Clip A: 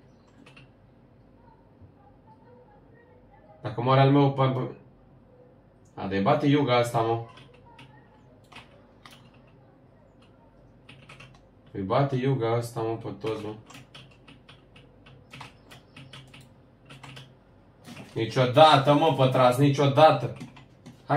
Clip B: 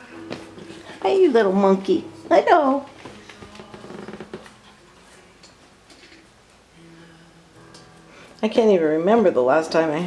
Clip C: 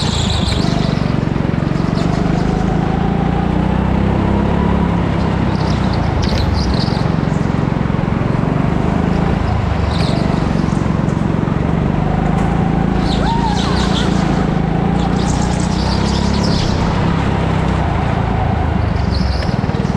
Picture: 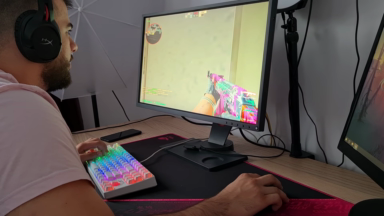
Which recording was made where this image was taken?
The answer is A